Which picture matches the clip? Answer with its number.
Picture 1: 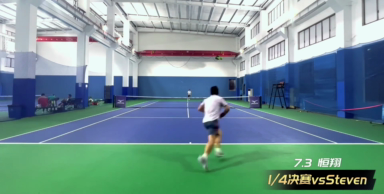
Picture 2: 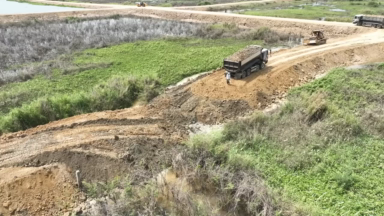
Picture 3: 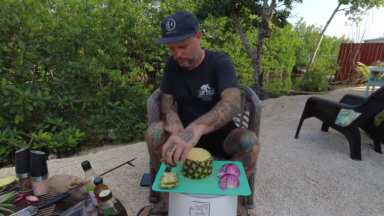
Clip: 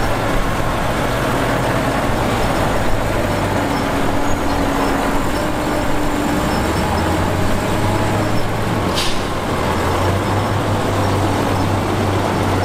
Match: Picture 2